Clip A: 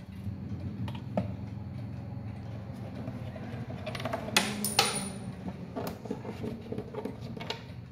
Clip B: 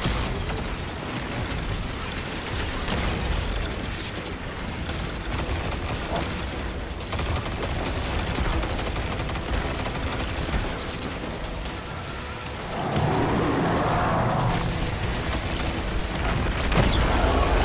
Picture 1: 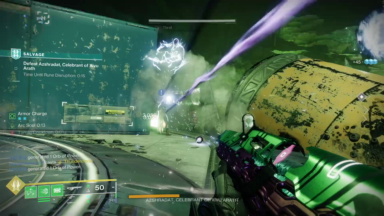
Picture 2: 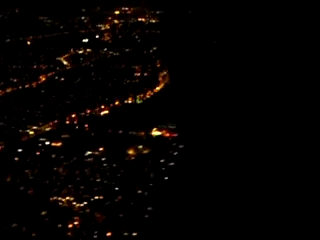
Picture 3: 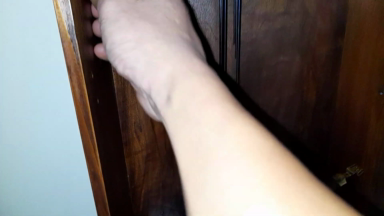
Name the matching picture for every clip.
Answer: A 3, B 1